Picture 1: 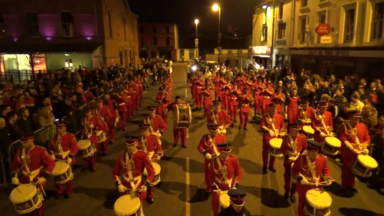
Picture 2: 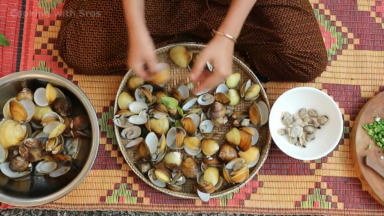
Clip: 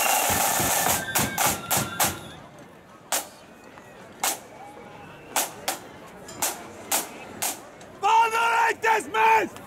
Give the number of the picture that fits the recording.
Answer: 1